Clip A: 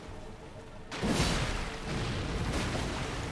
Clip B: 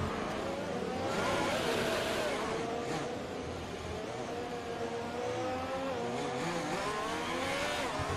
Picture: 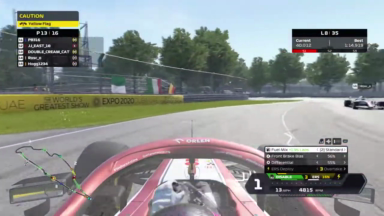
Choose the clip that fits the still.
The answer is B